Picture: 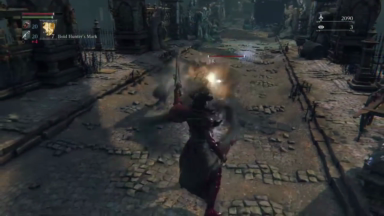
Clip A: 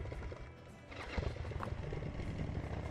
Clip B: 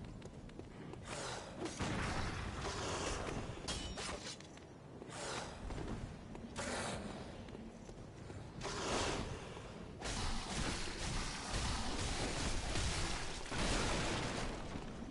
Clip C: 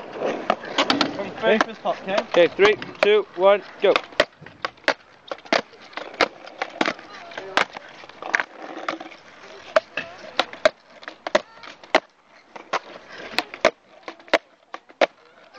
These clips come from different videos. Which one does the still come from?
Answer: B